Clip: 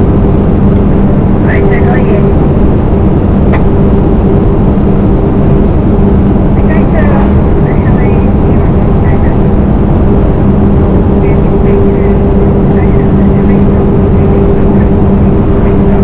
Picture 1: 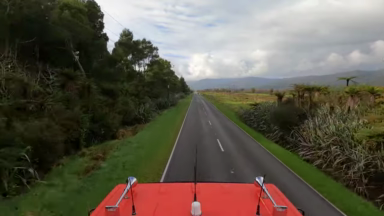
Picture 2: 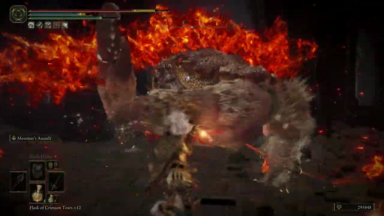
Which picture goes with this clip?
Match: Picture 1